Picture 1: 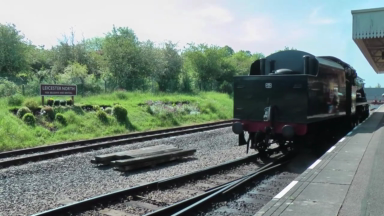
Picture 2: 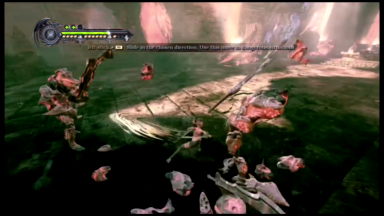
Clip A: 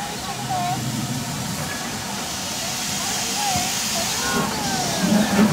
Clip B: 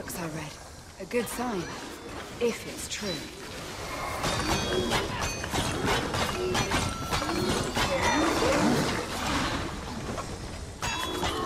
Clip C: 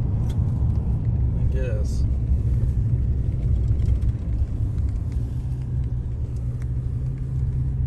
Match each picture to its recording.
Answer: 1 A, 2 B